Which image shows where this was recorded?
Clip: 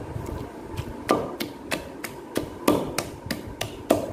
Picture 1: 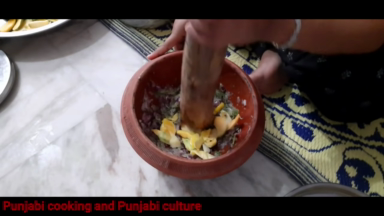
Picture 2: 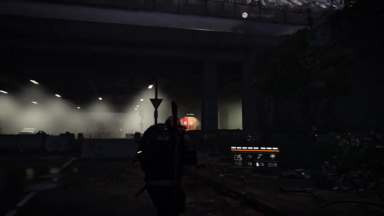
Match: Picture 1